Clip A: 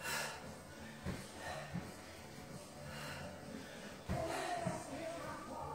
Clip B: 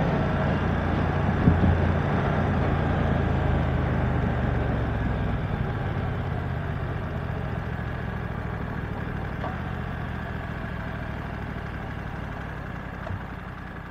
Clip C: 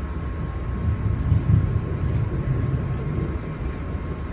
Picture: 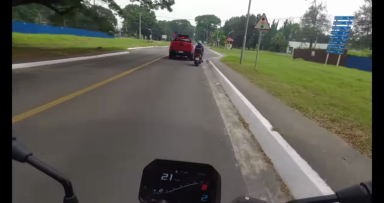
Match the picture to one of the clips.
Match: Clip B